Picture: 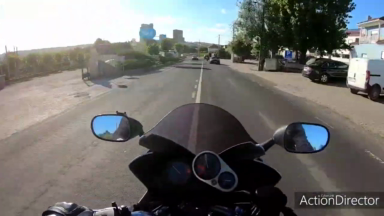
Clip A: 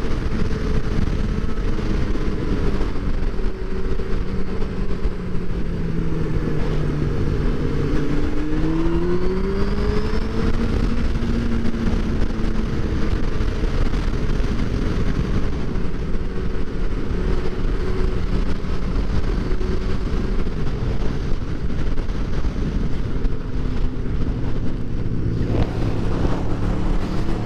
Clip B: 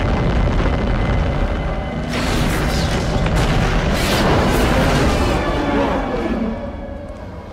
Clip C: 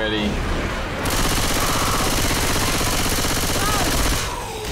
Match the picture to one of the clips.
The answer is A